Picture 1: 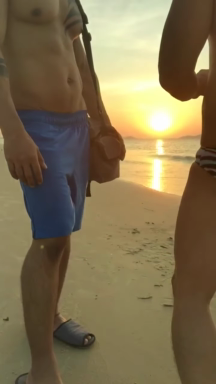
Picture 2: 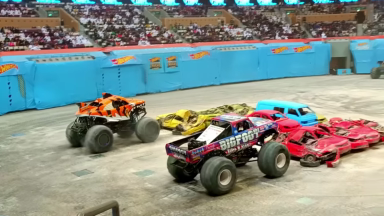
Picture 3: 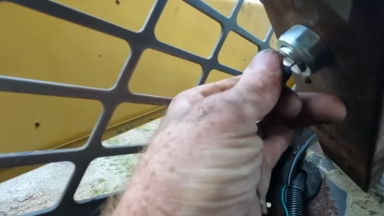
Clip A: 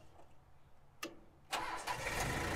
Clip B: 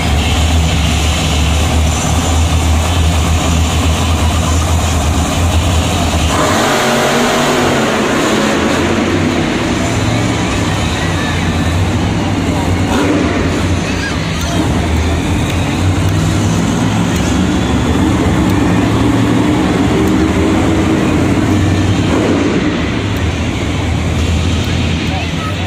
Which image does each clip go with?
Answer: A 3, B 2